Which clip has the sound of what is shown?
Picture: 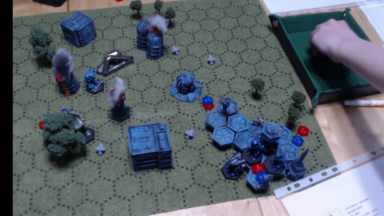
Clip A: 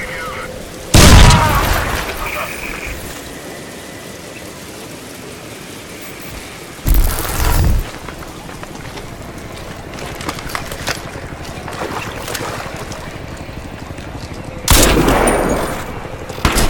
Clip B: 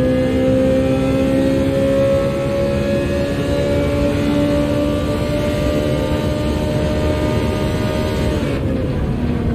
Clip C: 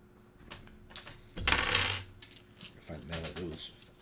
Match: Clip C